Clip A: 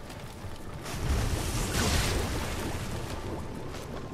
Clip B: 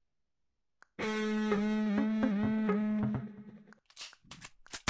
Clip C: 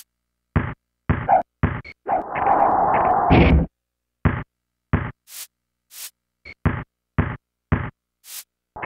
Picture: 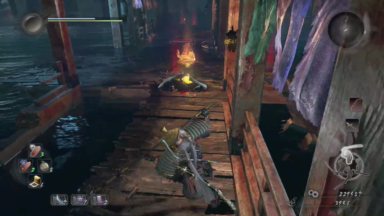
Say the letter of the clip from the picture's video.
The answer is A